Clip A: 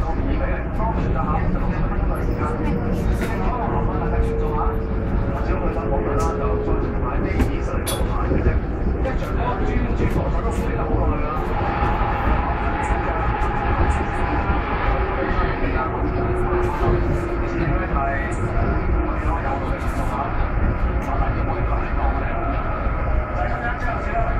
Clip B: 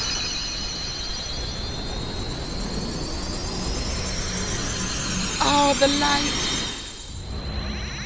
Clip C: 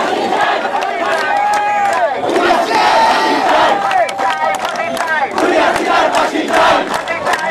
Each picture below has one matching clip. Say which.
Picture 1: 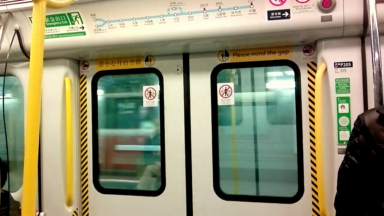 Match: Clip A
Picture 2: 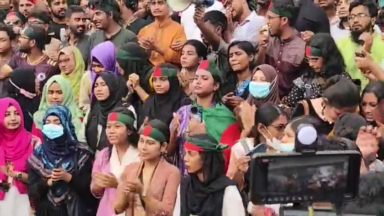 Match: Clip C